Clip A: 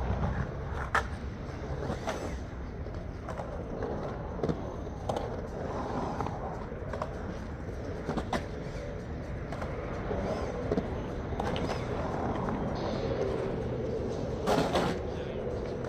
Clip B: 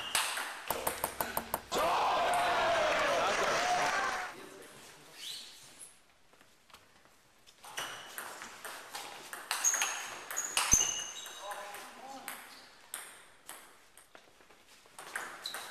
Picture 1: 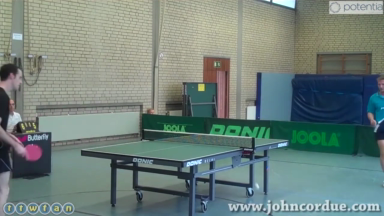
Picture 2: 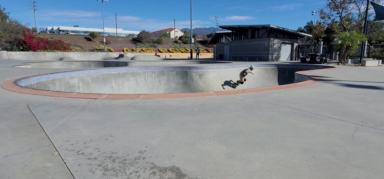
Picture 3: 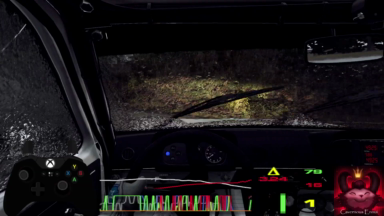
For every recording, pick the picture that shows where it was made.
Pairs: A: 2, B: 1